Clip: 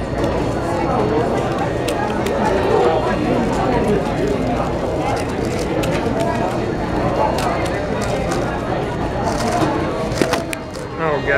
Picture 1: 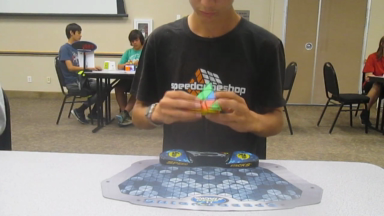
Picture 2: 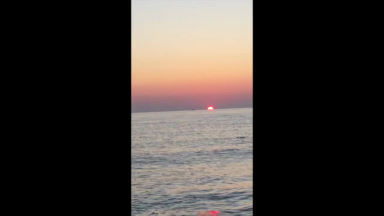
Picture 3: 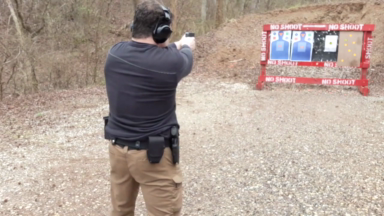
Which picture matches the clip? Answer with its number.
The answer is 1